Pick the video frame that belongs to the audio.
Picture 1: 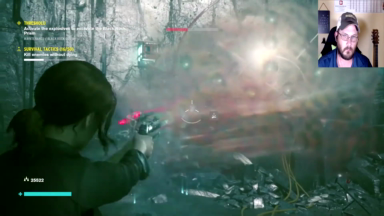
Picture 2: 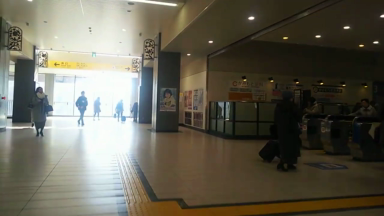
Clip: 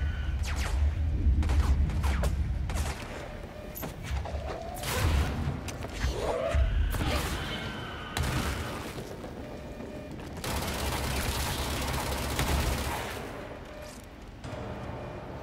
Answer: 1